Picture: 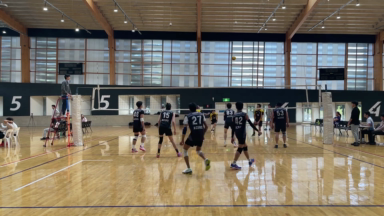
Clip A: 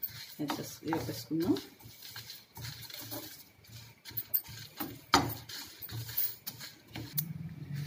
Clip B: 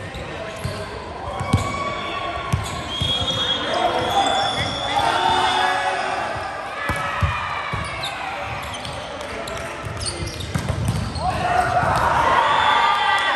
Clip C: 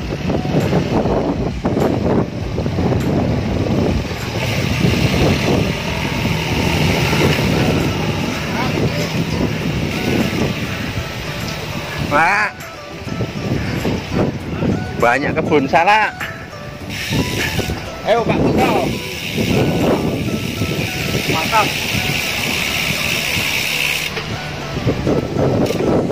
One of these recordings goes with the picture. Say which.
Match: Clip B